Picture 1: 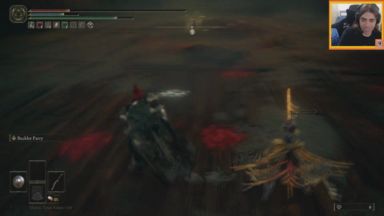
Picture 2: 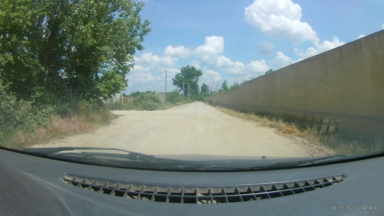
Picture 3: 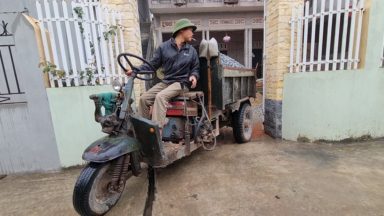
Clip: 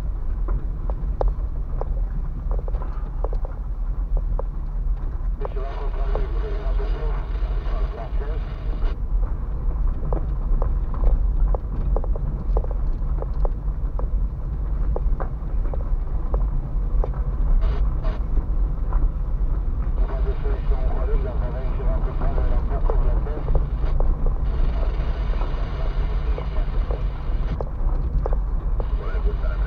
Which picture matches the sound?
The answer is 2